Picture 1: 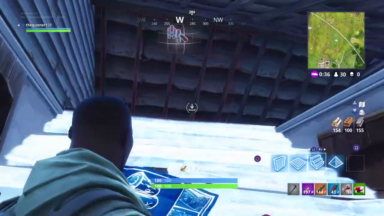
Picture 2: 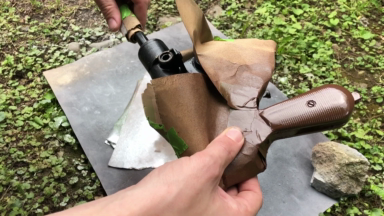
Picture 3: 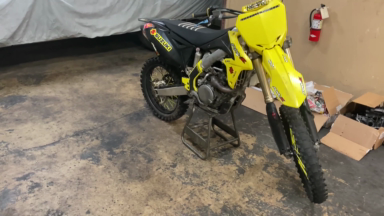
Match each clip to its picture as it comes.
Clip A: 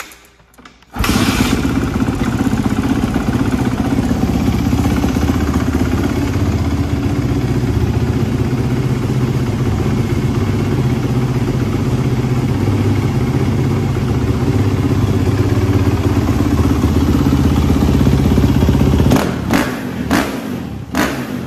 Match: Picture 3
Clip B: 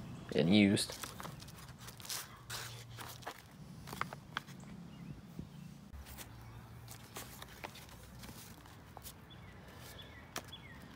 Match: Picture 2